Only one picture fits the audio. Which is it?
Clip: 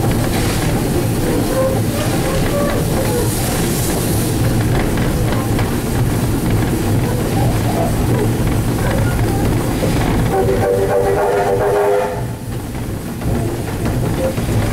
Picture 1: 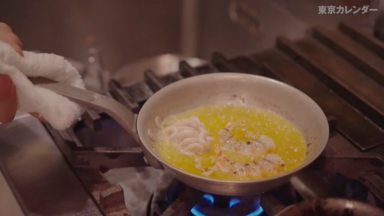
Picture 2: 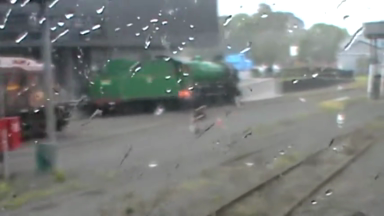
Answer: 2